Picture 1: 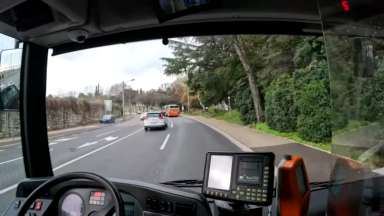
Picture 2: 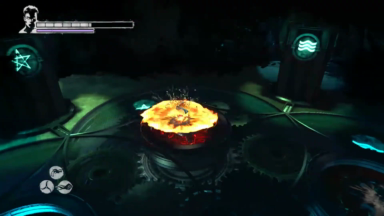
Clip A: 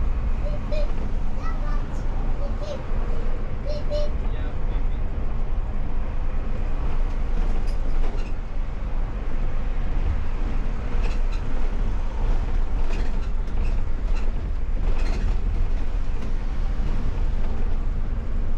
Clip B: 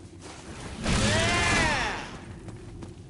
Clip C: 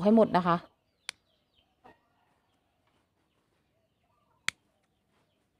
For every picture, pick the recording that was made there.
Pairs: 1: A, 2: B